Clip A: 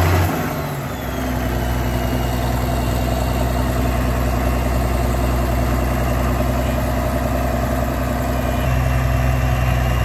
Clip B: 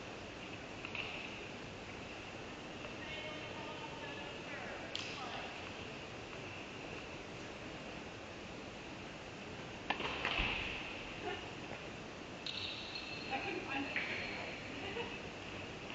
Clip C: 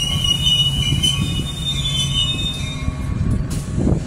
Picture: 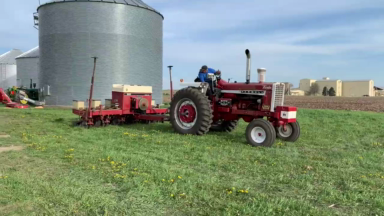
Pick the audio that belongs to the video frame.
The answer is A